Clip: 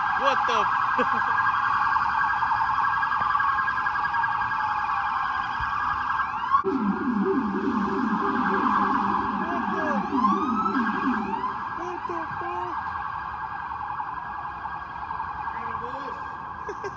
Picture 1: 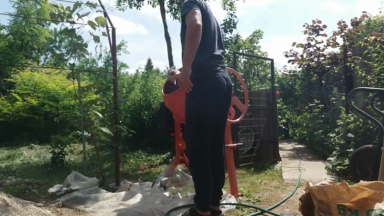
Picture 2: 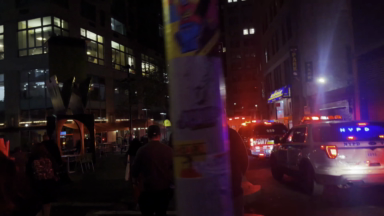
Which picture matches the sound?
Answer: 2